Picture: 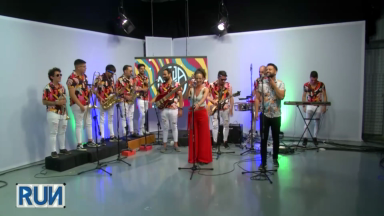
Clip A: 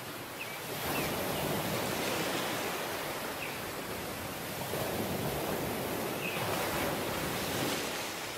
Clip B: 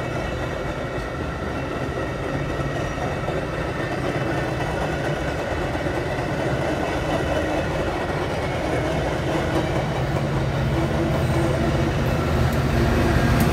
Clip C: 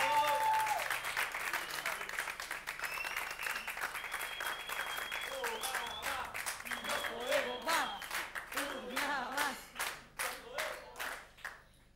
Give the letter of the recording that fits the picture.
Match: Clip C